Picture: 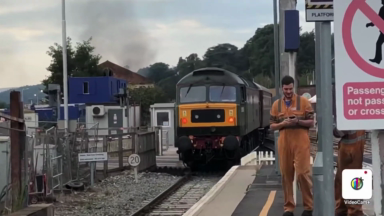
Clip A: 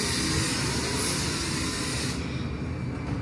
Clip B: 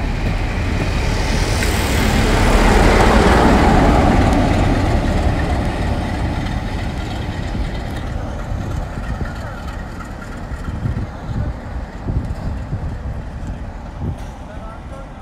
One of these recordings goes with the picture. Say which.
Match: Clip B